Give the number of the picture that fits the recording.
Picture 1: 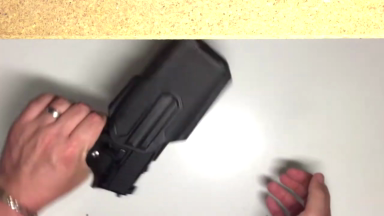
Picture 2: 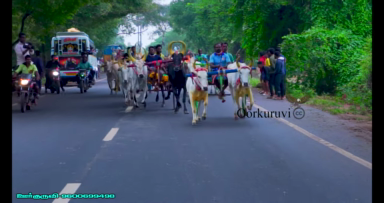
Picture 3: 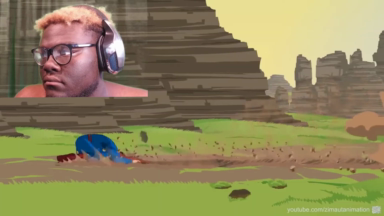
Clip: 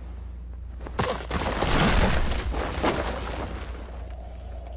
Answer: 3